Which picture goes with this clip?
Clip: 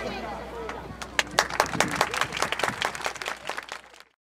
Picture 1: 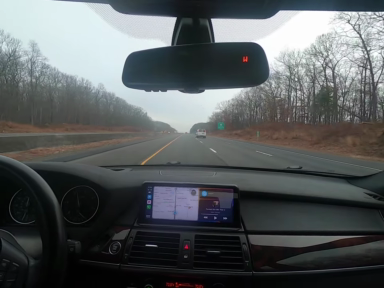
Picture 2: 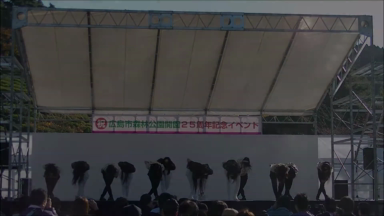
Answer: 2